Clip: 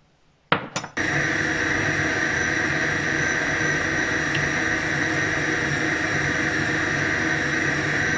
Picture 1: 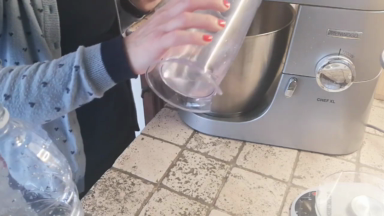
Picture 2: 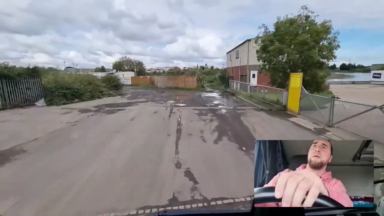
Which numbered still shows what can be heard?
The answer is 1